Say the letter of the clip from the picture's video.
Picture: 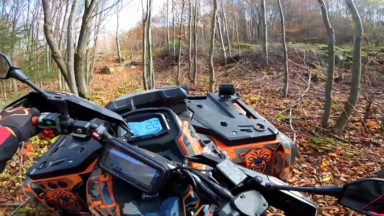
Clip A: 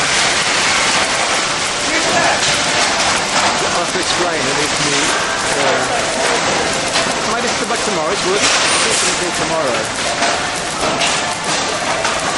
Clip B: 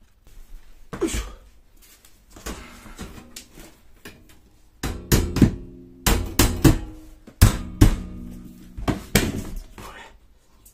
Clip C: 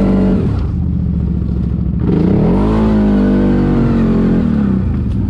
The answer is C